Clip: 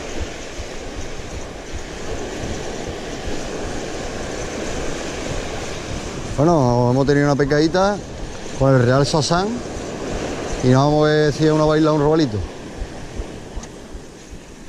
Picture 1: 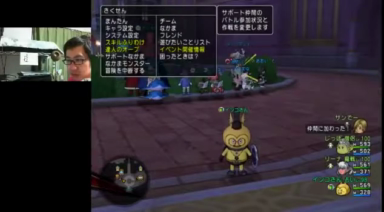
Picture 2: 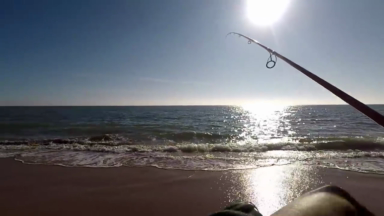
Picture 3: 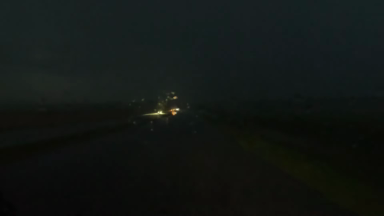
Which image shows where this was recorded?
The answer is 2